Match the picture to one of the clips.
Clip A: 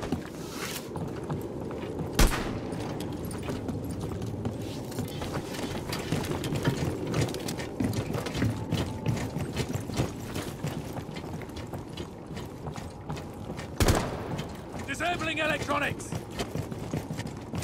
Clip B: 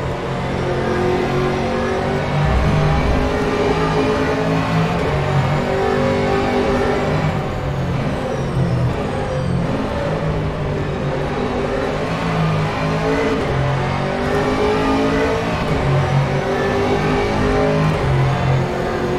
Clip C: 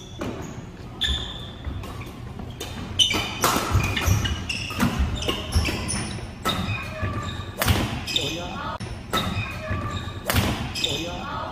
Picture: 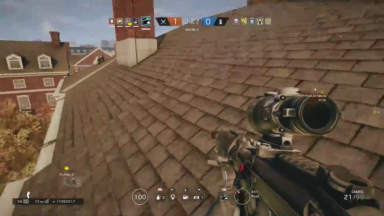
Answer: A